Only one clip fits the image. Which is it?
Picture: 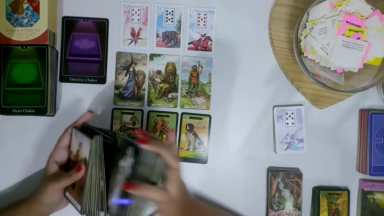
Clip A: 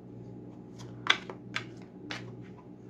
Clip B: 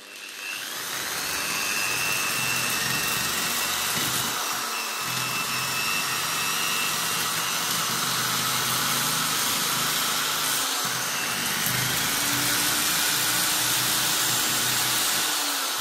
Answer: A